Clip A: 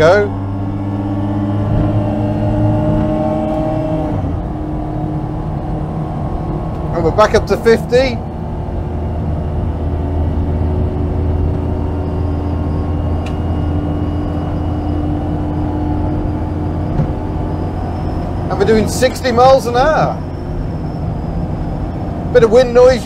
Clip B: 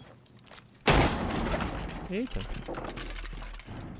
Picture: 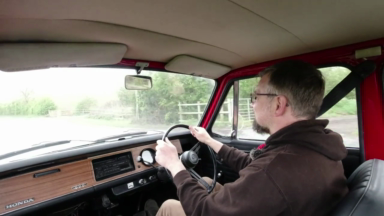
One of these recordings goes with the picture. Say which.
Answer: A